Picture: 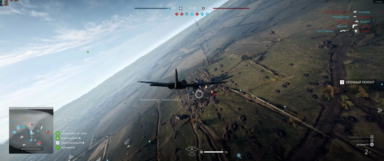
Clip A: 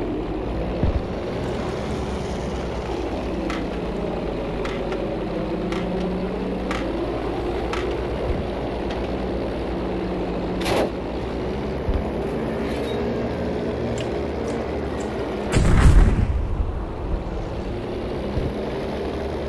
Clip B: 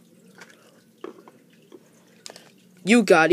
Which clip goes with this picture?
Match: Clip A